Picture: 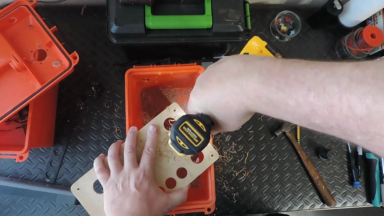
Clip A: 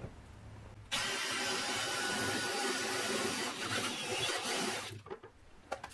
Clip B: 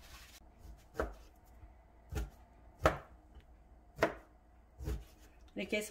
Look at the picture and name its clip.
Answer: A